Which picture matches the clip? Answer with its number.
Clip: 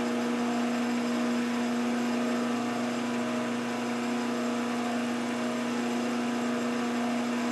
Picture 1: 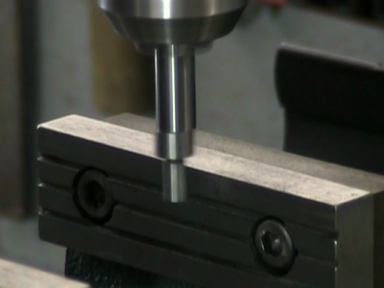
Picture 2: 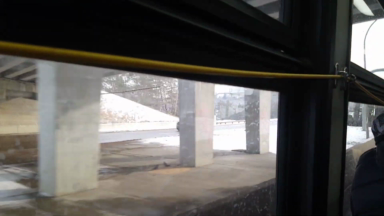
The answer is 1